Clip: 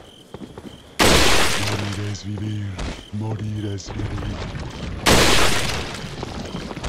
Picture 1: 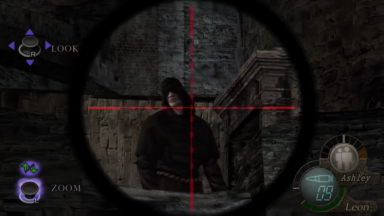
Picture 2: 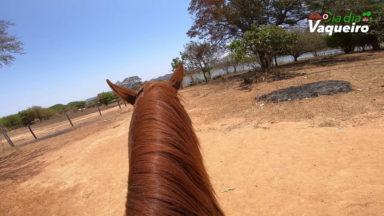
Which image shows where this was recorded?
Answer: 1